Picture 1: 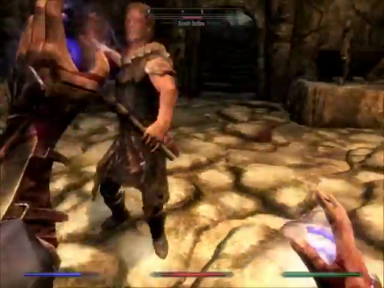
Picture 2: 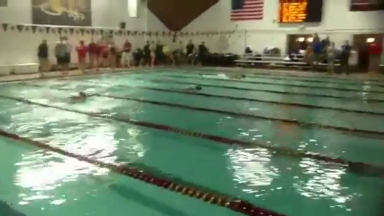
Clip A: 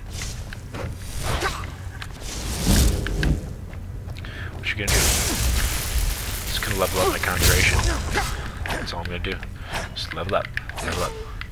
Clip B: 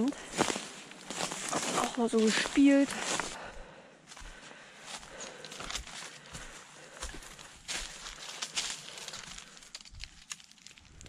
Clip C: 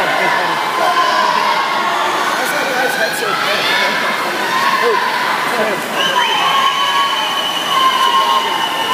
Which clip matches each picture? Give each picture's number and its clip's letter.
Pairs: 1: A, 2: C